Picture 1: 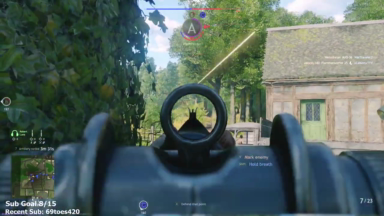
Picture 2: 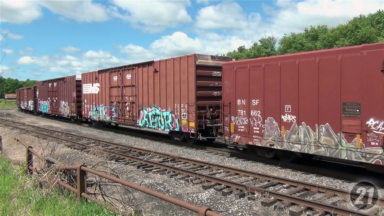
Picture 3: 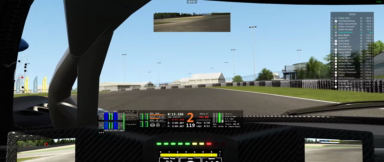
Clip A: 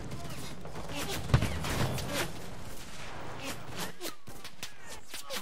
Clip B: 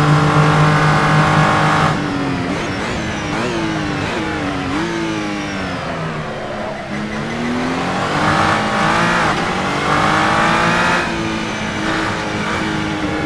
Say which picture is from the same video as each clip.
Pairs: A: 1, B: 3